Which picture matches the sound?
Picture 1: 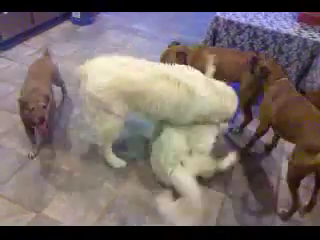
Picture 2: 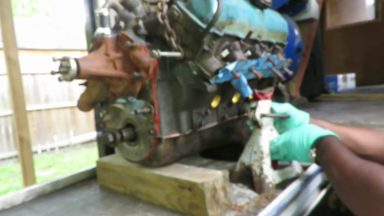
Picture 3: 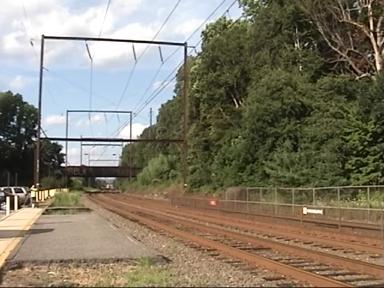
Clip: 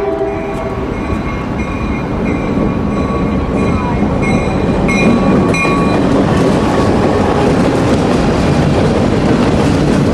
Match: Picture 3